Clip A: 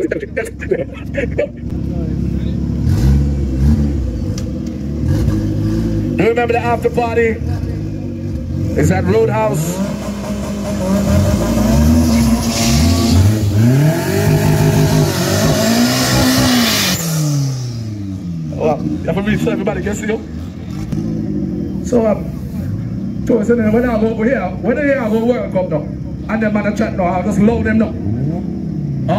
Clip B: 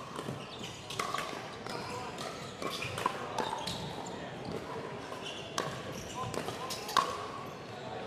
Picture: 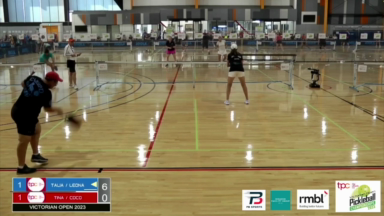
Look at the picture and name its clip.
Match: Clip B